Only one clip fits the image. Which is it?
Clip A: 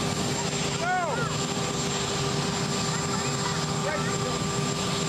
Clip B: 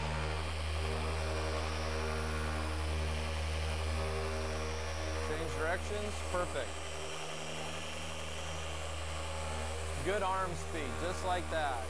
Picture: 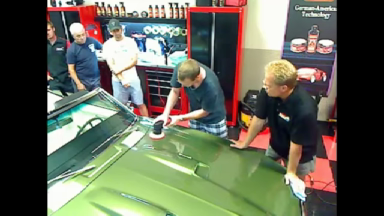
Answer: B